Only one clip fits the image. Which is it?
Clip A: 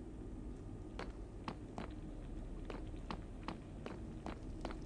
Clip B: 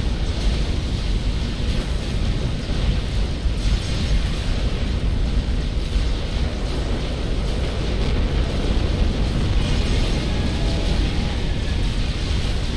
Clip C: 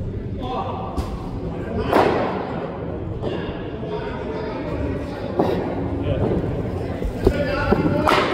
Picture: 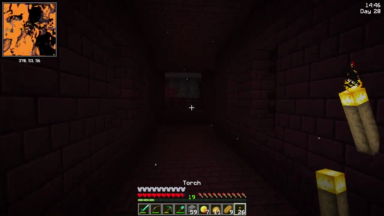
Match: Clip A